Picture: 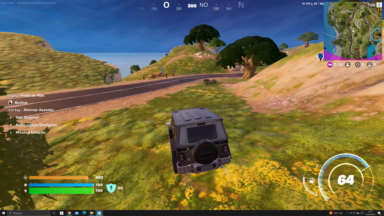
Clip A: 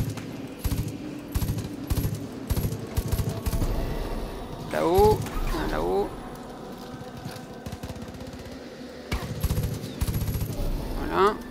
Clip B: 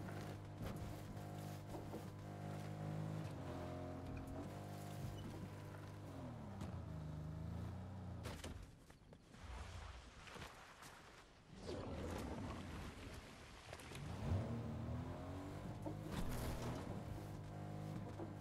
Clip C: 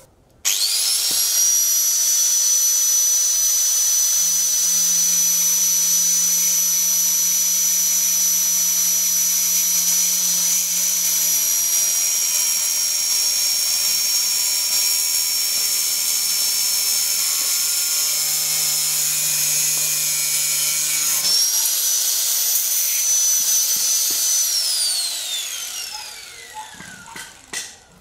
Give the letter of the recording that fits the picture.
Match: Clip B